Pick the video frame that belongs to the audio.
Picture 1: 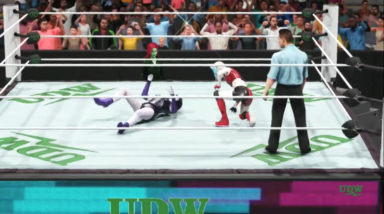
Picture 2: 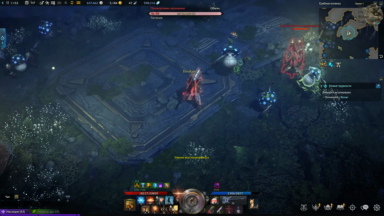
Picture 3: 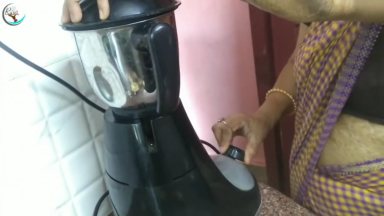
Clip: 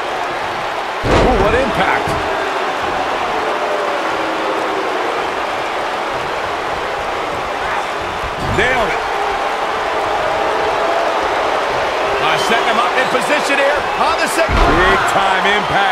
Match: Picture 1